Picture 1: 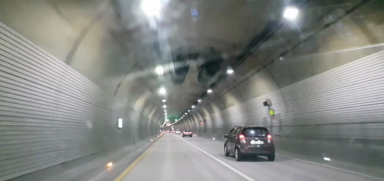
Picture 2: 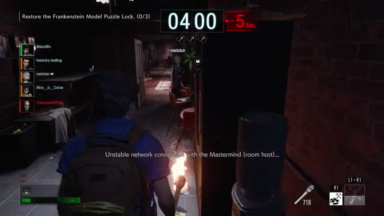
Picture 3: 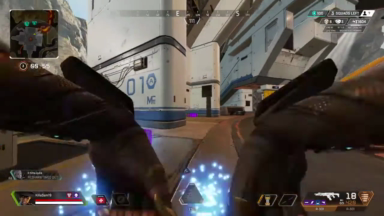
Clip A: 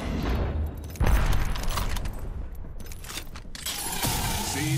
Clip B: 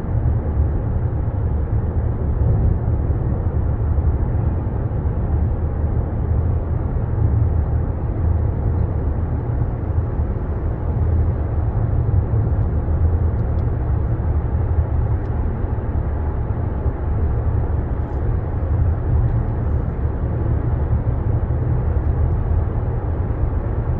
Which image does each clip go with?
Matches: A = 3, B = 1